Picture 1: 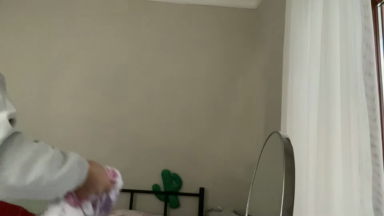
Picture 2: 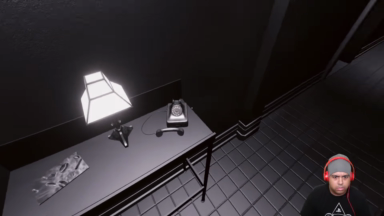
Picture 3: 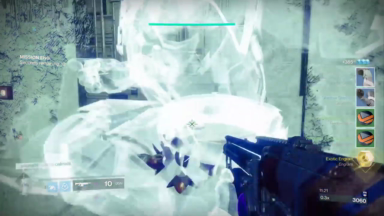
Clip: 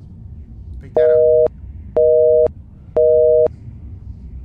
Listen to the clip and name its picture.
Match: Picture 2